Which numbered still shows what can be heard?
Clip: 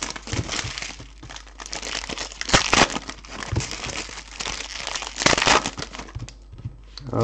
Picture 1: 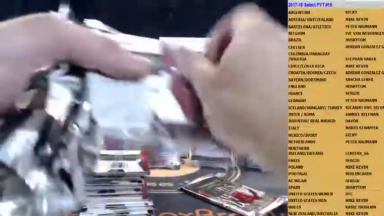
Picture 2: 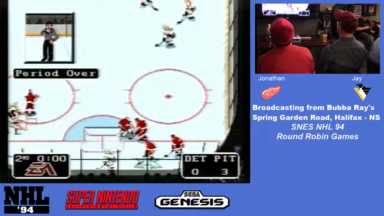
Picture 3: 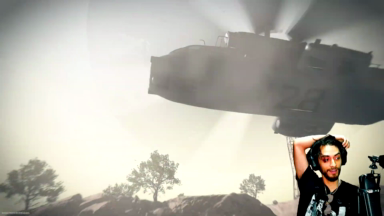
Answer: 1